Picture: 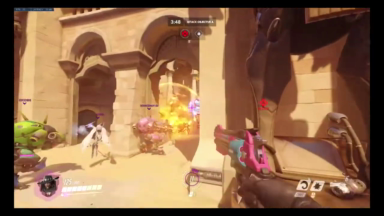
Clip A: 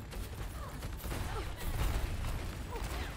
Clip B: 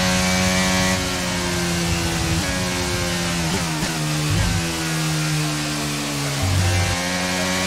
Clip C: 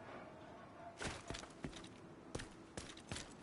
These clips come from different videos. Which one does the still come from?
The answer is A